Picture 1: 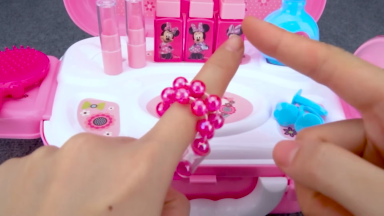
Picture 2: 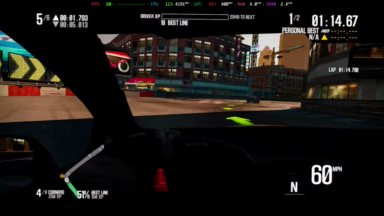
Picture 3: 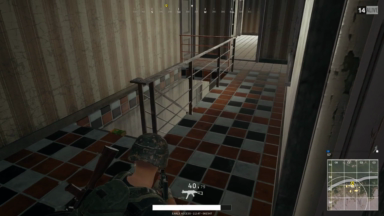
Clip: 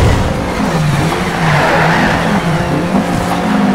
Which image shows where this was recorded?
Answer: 2